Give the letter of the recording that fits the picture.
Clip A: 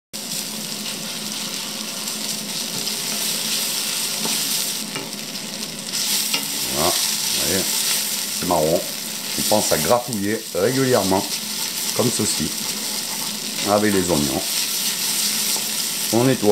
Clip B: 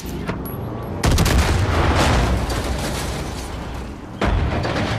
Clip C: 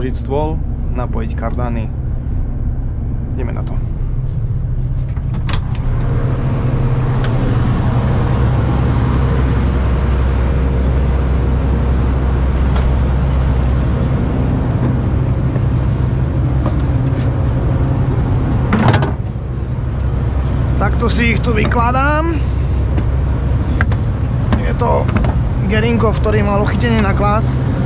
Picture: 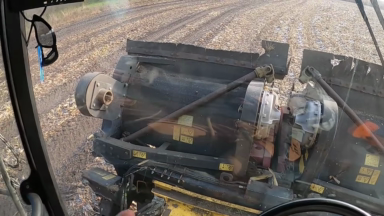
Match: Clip C